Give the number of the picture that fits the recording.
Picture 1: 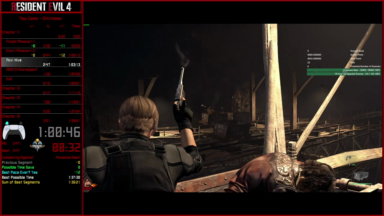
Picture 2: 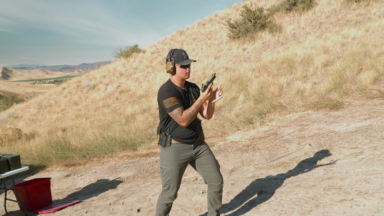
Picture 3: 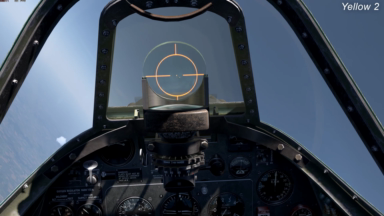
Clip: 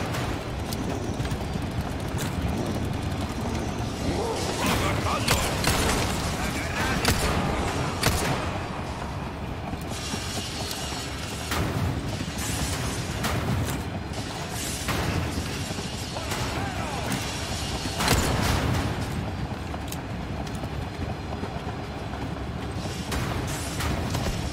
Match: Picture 1